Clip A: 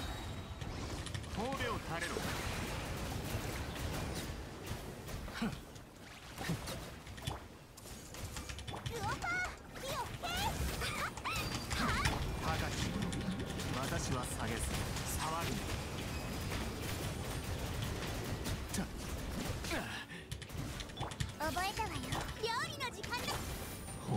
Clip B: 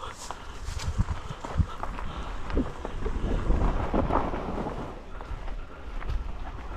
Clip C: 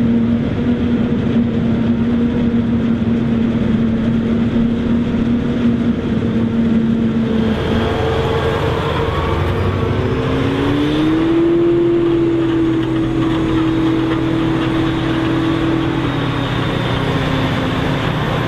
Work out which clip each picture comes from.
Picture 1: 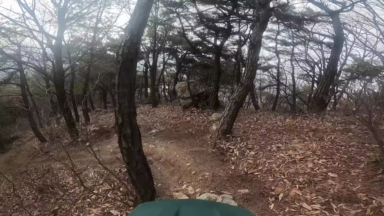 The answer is B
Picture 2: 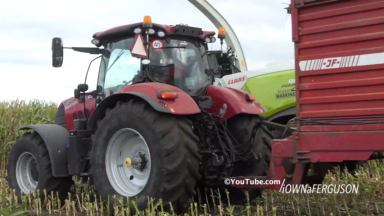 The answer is C